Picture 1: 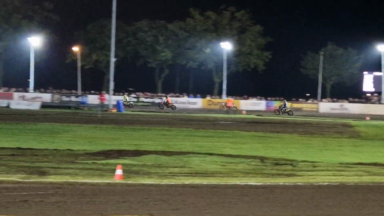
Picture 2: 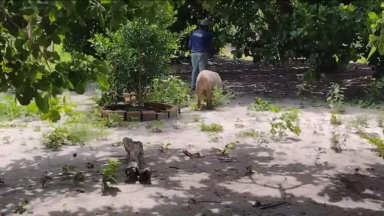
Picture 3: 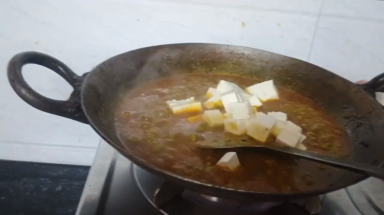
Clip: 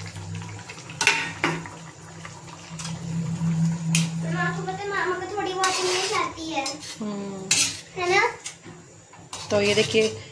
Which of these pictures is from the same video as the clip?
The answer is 3